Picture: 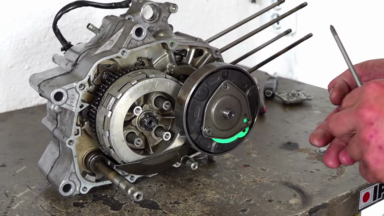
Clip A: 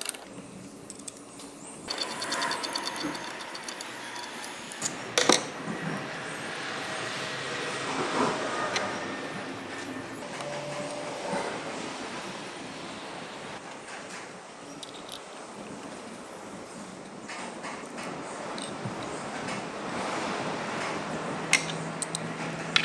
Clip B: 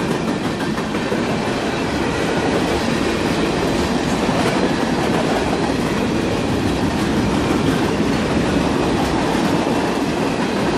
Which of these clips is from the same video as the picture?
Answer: A